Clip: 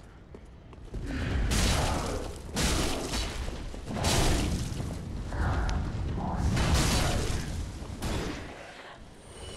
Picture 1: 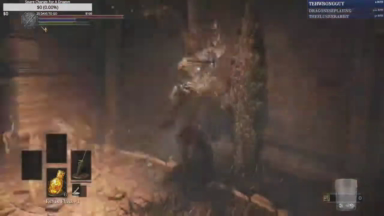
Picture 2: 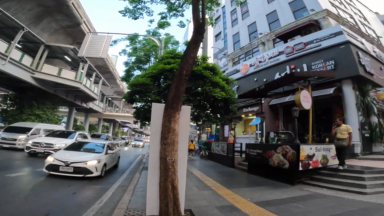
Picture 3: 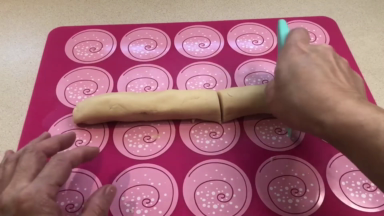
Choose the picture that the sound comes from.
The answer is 1